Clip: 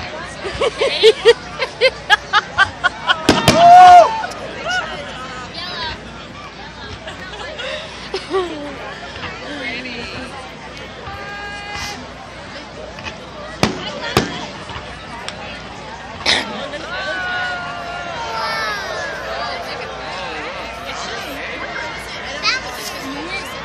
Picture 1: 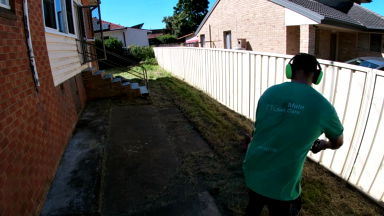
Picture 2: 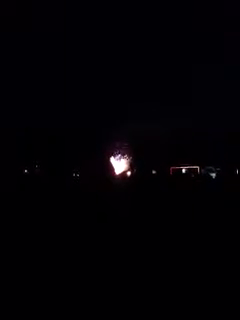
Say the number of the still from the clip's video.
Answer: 2